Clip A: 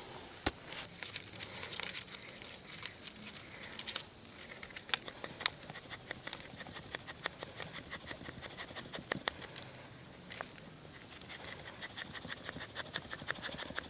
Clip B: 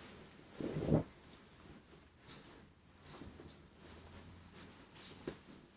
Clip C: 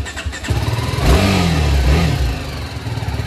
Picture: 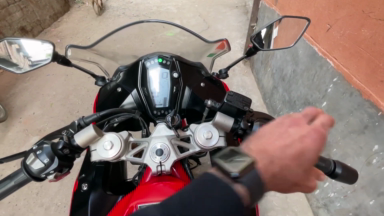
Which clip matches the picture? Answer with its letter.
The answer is C